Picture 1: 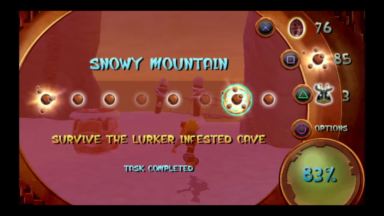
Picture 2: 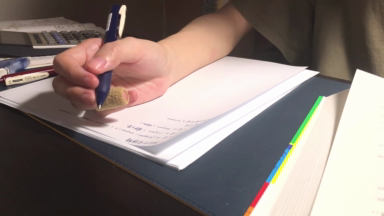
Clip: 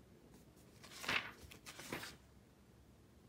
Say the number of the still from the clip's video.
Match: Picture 2